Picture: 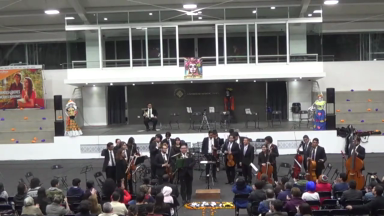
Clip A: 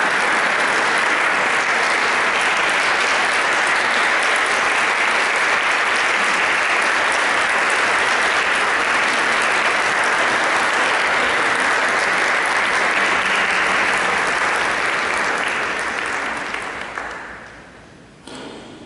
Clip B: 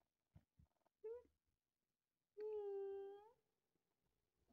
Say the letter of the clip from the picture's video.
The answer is A